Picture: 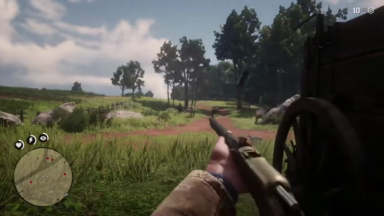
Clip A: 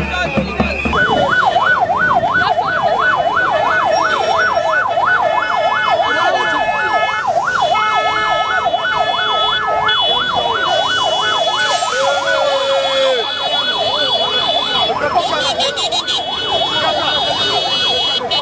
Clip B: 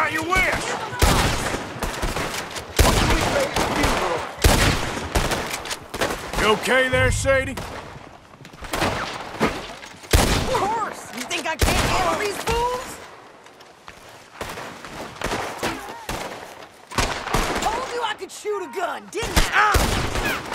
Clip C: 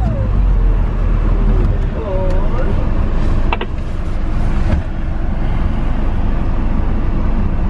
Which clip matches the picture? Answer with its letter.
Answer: B